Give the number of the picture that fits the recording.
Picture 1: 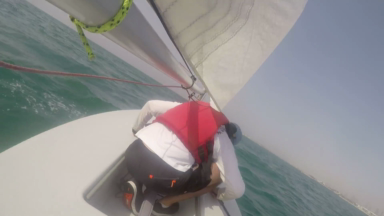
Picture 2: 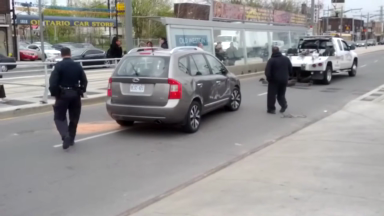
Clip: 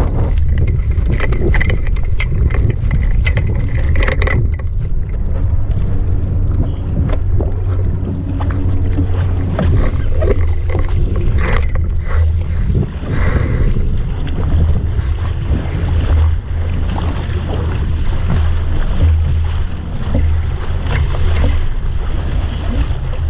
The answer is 1